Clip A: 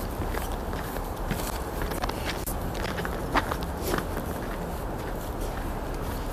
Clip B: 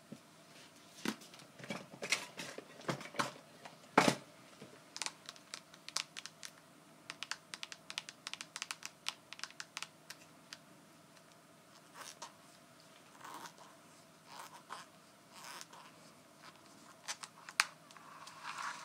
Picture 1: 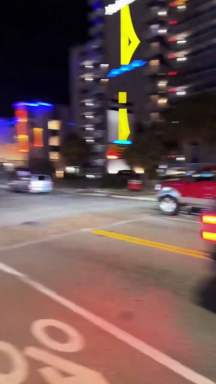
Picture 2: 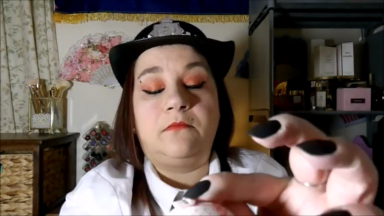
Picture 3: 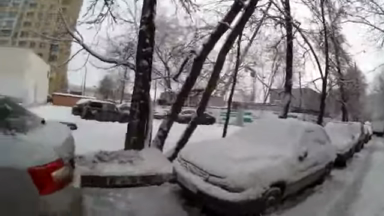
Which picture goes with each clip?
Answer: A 3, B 2